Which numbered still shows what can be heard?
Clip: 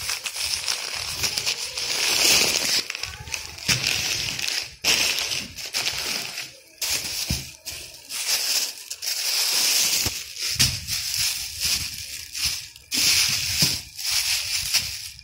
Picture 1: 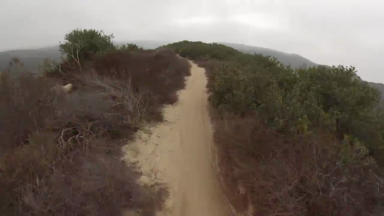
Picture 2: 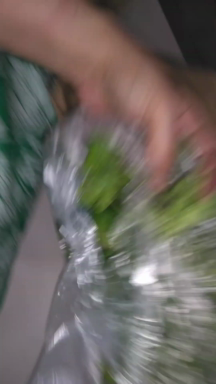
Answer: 2